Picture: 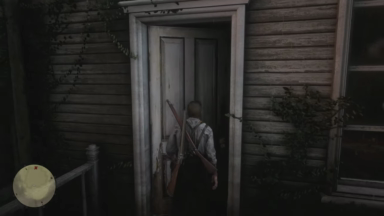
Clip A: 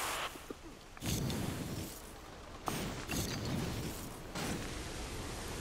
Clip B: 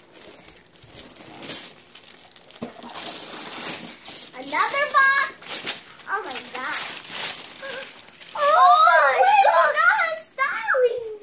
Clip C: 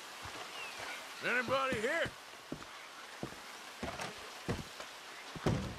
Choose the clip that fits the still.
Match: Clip C